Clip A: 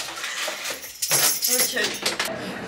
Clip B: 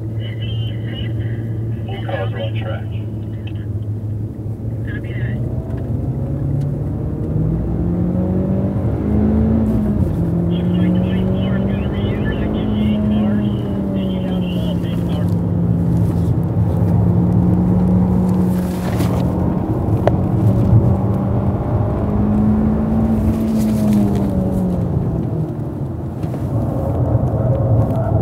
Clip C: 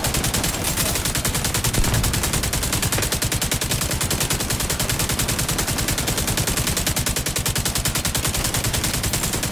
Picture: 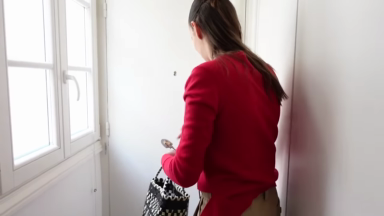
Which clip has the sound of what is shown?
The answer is A